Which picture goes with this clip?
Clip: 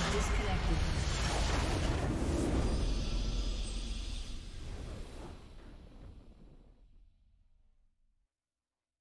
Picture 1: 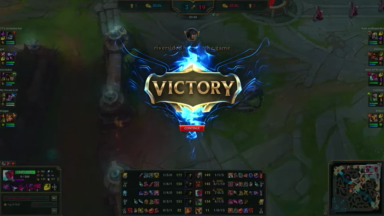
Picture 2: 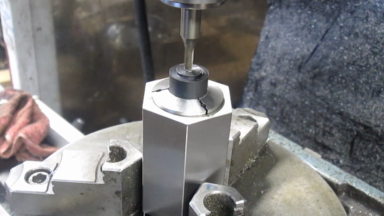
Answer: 1